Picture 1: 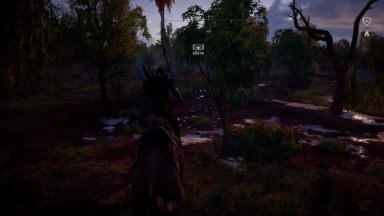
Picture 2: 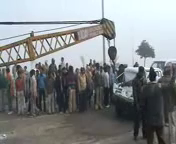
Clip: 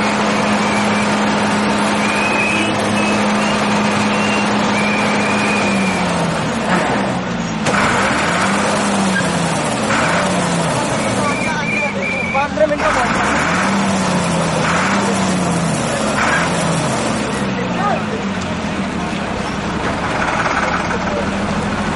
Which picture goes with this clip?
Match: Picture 2